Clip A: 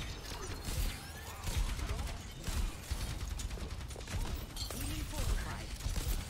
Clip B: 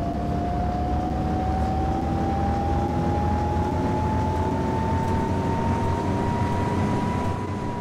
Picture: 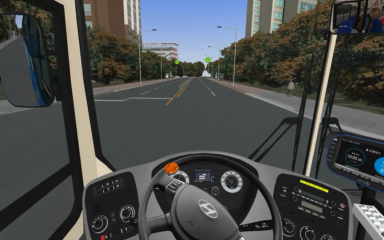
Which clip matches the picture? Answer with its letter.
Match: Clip B